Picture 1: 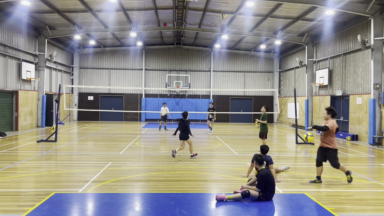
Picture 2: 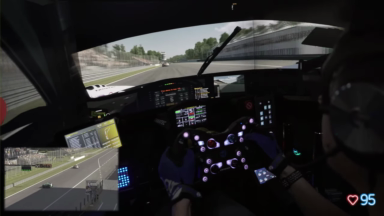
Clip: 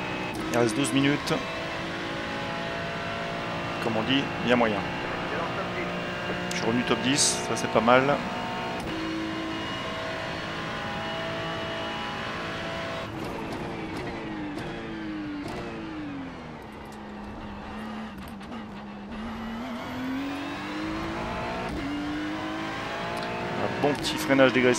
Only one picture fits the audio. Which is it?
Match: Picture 2